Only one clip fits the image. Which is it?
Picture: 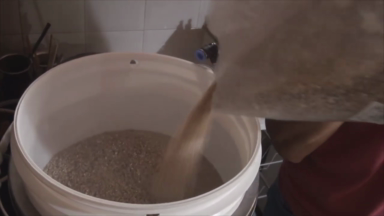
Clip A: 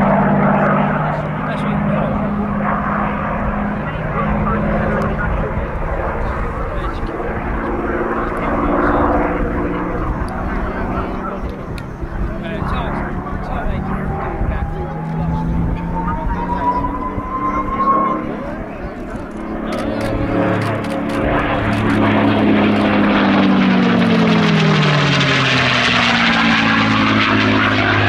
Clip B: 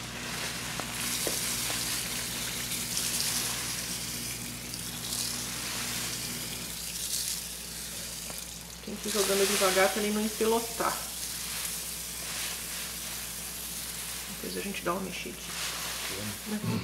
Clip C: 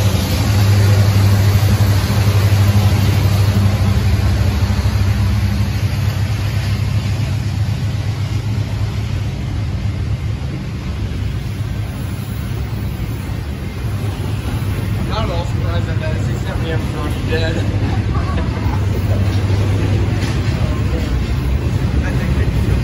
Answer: B